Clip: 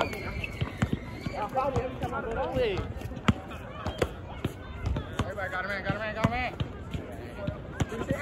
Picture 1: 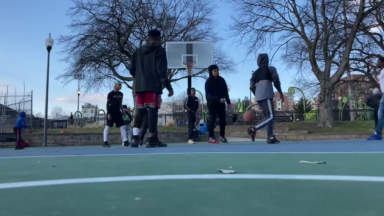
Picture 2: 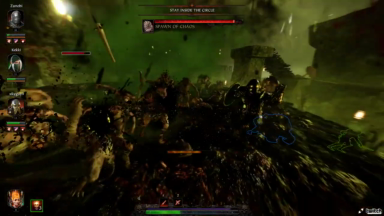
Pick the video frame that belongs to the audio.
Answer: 1